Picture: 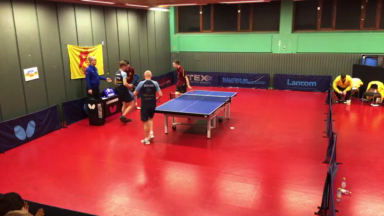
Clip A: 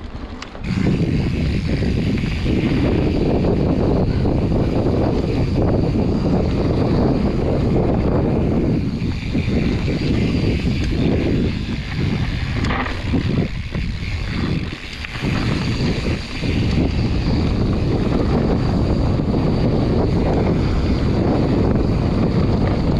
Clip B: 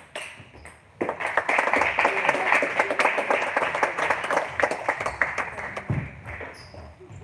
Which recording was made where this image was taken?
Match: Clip B